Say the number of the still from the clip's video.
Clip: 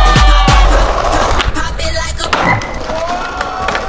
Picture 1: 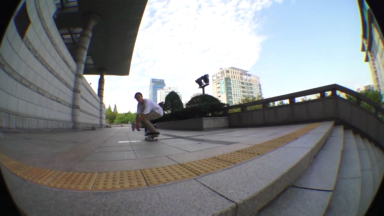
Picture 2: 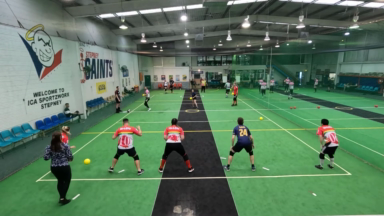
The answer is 1